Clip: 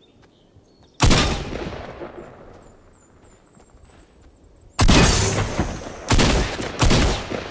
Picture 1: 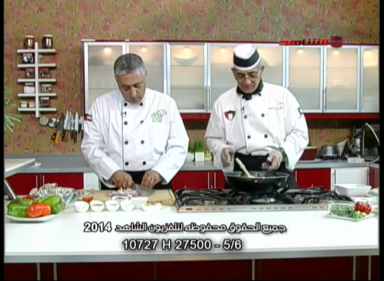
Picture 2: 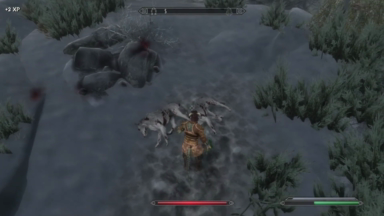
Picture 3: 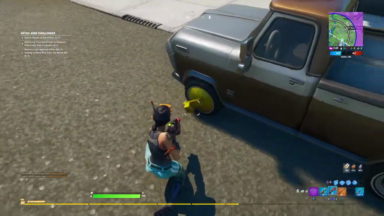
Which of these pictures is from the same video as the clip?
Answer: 3